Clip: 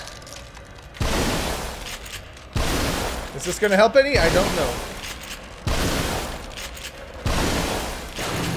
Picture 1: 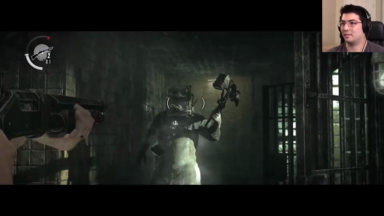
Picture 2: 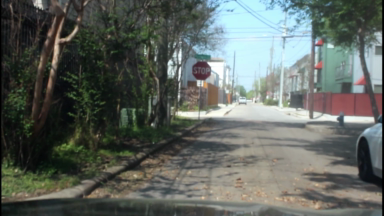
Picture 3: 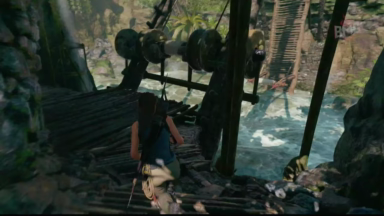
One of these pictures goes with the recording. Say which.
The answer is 1